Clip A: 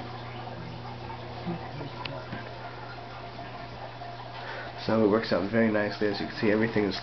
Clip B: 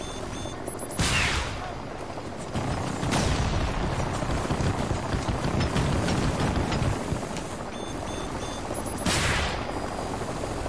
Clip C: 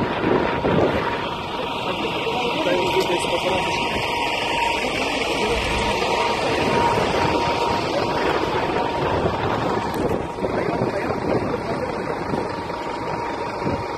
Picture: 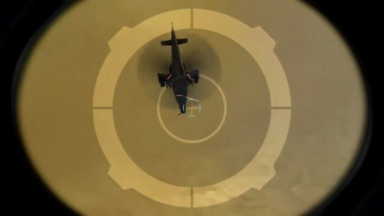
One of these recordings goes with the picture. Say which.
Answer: B